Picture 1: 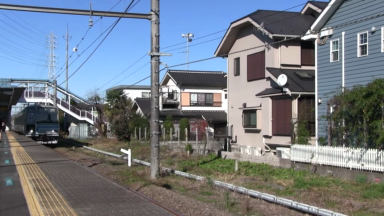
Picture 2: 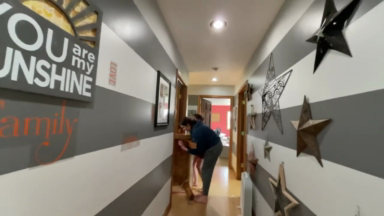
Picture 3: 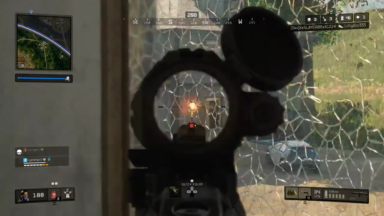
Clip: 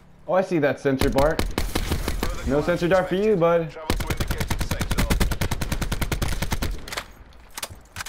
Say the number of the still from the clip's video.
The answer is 3